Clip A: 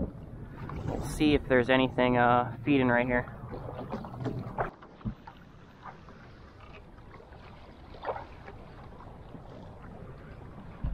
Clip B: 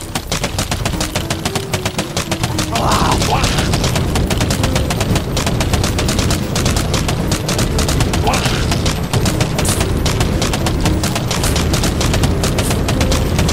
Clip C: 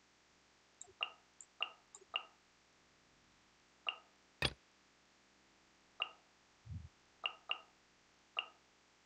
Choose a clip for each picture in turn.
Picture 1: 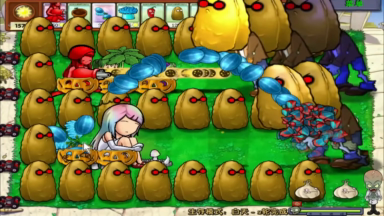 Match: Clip B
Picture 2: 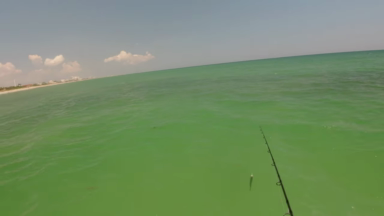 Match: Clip A